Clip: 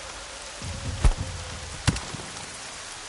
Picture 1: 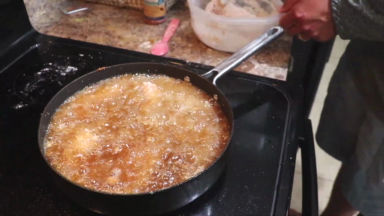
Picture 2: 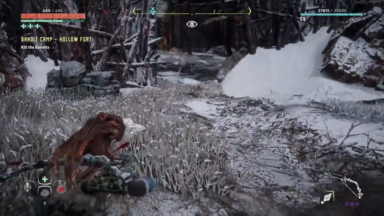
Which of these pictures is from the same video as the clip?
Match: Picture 2